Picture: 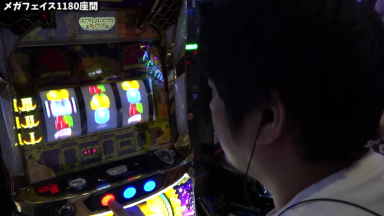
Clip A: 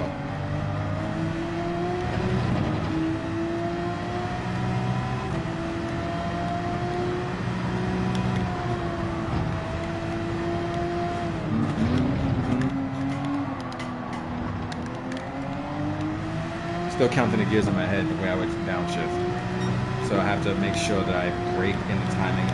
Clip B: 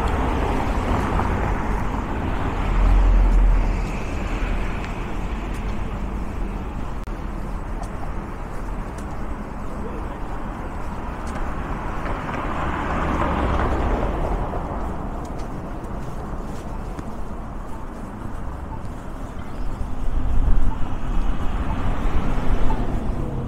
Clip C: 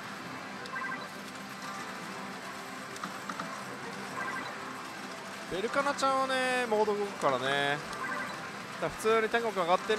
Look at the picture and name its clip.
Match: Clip C